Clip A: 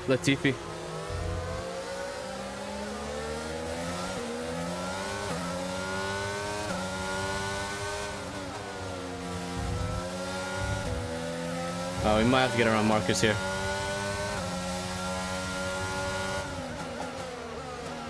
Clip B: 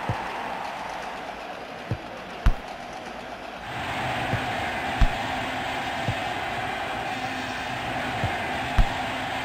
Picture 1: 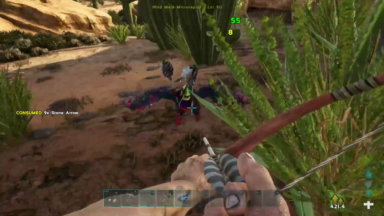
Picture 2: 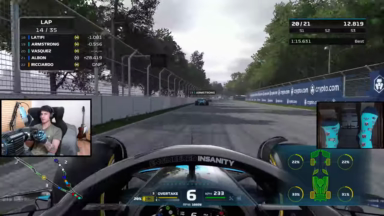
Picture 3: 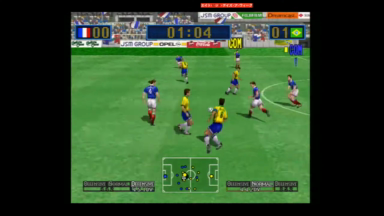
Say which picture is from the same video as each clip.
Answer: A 2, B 3